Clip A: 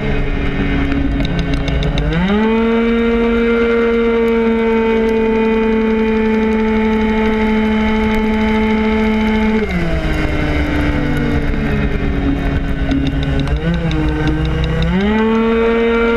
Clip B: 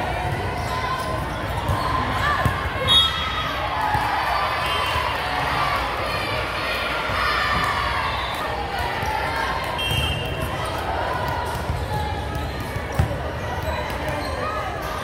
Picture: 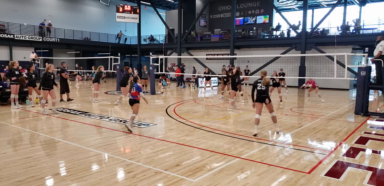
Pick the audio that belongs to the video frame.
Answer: B